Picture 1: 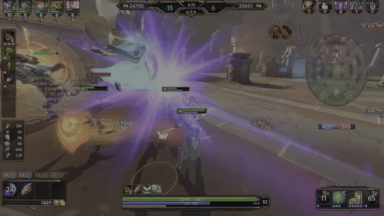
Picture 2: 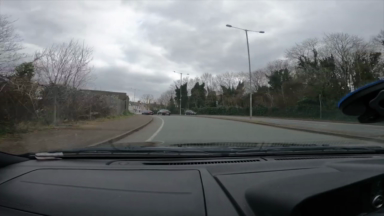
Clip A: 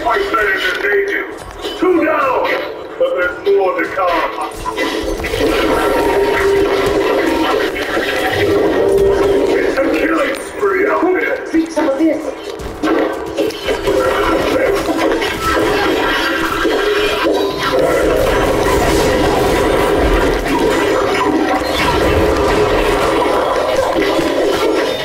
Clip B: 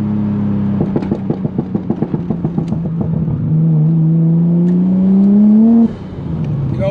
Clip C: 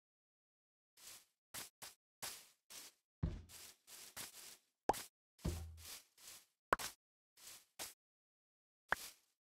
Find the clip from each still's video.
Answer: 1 A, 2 B